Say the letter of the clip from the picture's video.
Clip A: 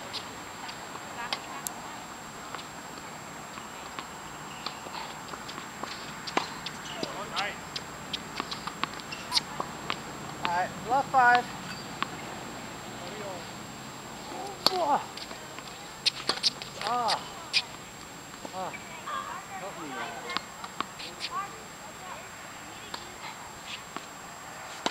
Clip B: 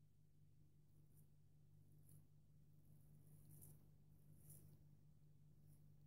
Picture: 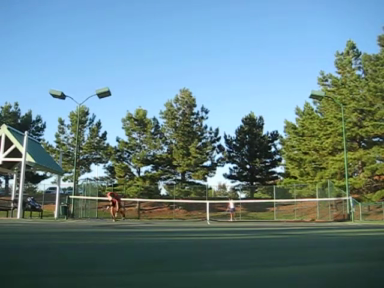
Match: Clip A